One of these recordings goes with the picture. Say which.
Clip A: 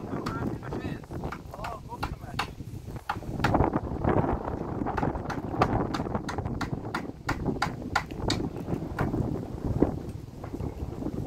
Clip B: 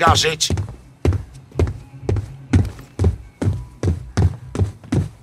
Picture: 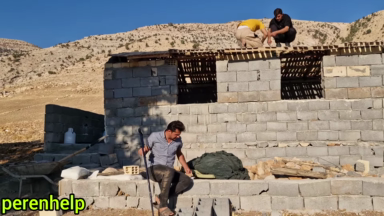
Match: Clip A